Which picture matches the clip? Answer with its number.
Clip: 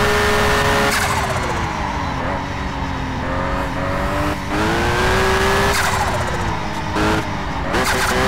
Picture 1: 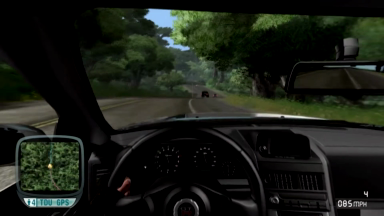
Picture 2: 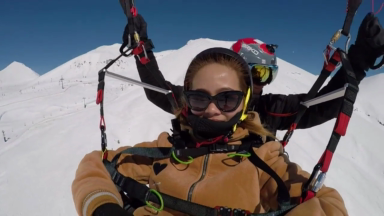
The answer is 1